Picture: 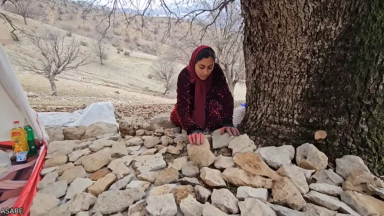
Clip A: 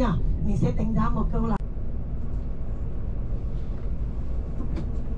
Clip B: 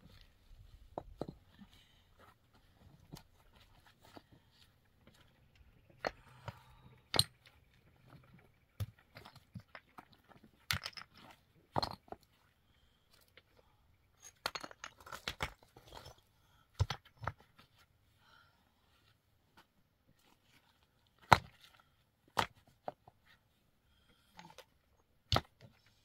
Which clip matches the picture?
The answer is B